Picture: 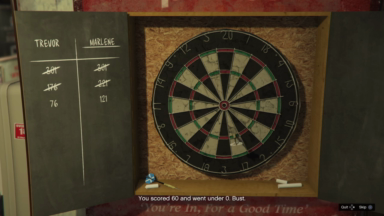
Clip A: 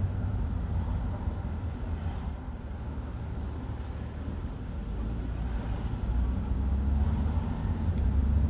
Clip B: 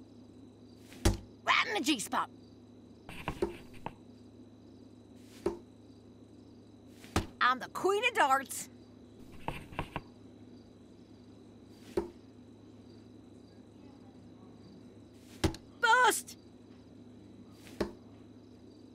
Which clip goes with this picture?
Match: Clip B